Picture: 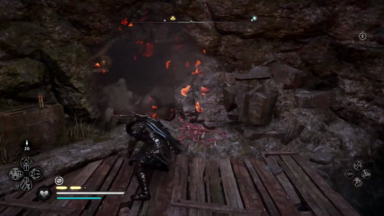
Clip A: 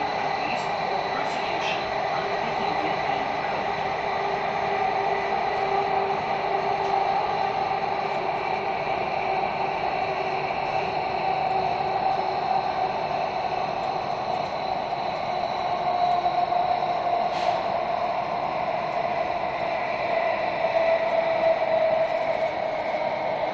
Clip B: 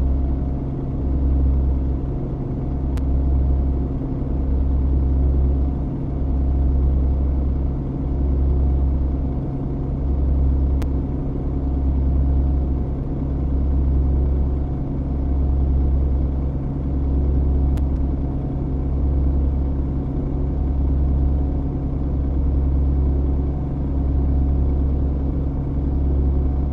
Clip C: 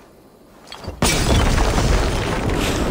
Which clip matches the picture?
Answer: C